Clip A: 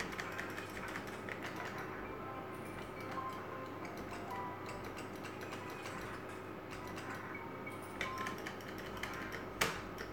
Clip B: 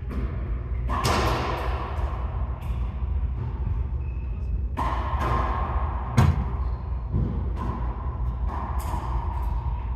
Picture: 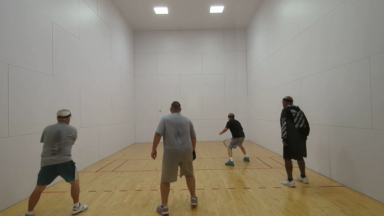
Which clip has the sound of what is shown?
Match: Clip B